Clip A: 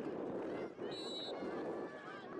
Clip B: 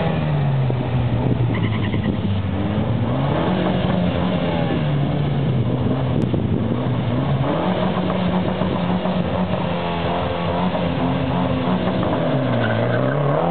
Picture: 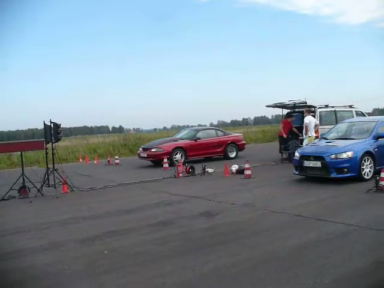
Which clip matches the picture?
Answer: B